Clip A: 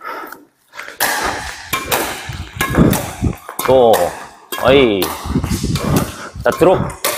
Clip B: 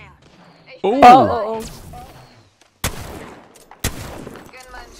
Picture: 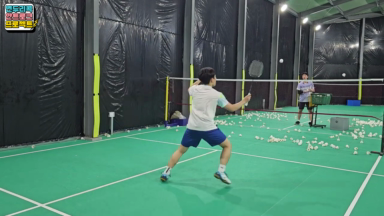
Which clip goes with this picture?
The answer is A